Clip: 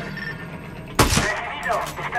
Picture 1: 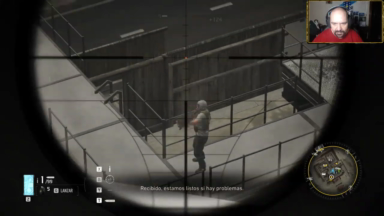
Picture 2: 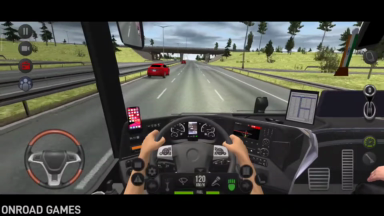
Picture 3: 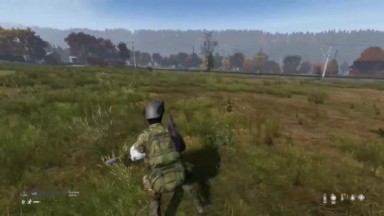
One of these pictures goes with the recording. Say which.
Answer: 1